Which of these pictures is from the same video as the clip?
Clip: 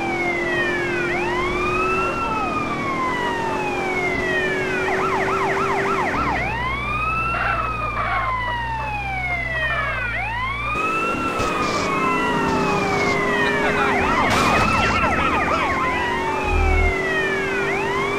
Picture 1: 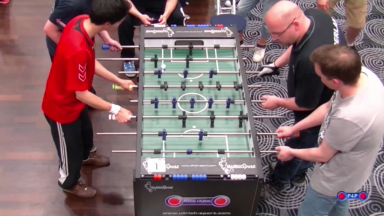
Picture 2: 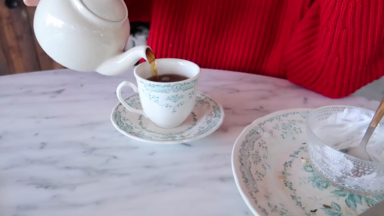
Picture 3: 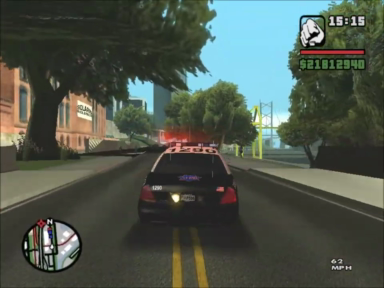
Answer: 3